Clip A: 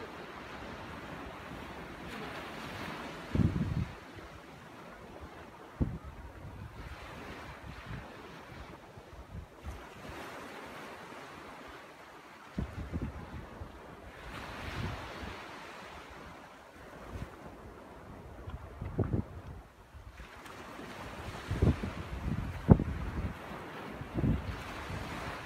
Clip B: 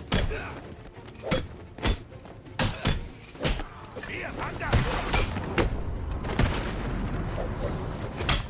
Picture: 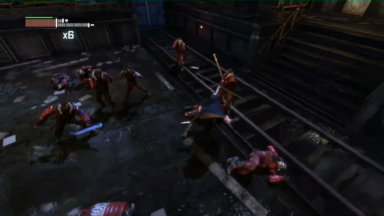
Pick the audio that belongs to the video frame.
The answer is B